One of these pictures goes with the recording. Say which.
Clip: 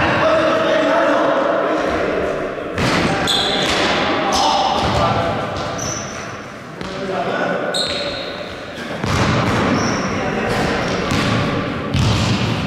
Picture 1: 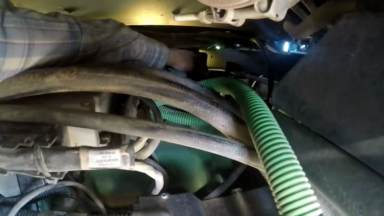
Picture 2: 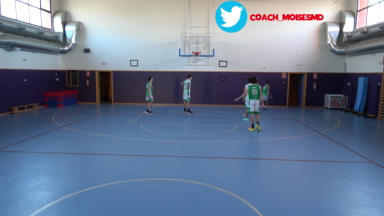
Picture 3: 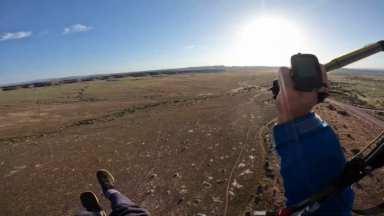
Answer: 2